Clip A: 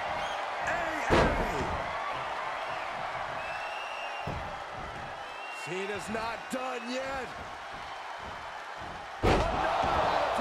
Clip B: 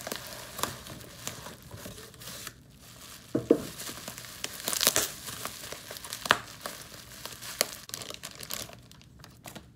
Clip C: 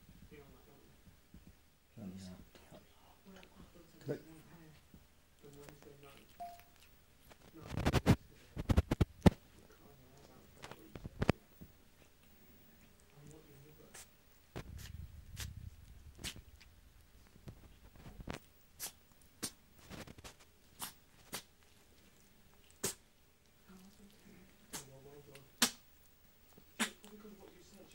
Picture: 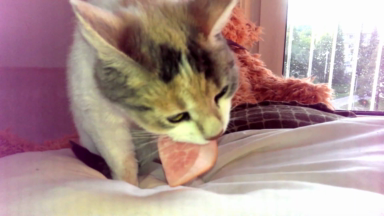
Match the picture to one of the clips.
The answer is C